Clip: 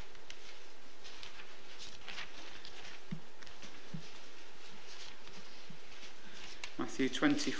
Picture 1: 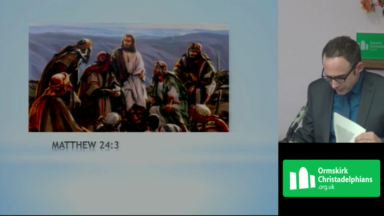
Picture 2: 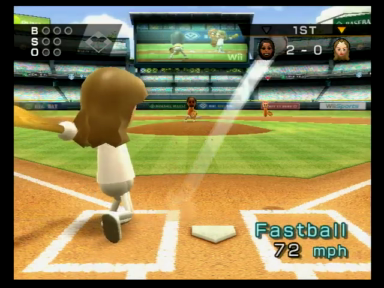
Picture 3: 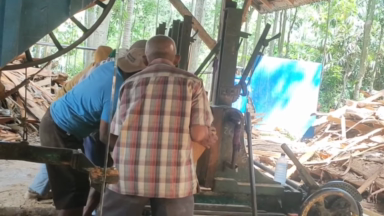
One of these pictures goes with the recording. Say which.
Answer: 1